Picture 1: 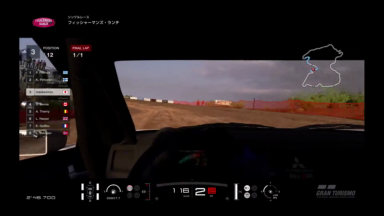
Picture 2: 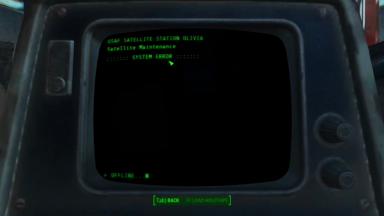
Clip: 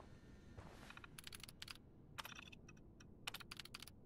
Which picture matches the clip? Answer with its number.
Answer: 2